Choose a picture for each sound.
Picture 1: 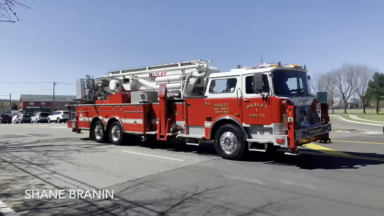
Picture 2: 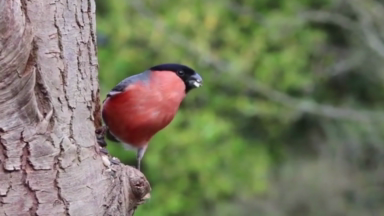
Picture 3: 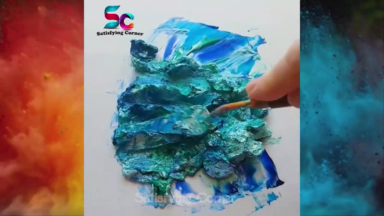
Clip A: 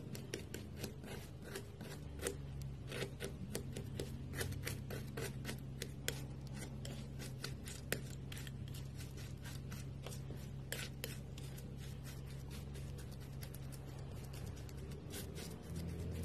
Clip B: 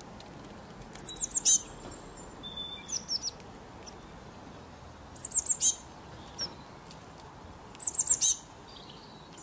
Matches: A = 3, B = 2